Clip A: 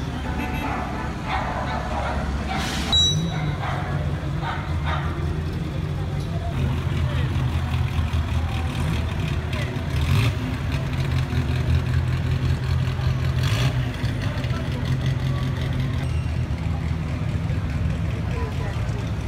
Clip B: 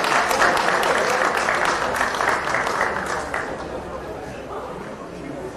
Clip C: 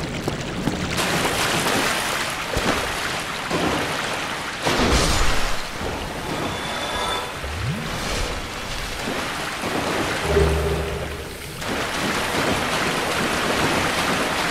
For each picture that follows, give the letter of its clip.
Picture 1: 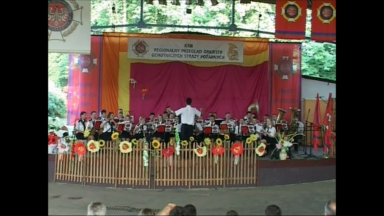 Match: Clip B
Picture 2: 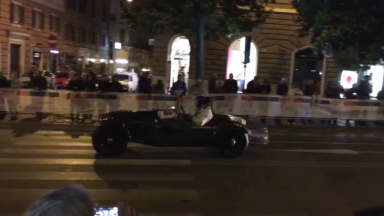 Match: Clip A